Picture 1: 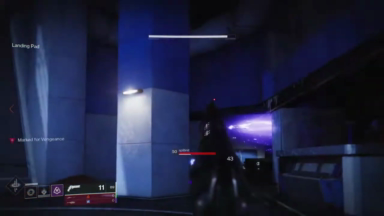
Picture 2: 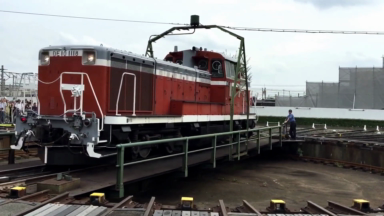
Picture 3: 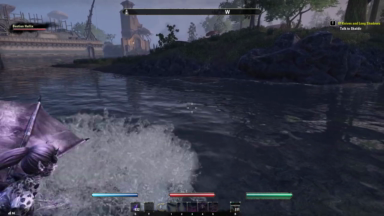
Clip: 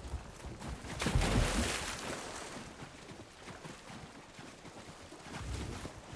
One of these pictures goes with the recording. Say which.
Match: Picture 3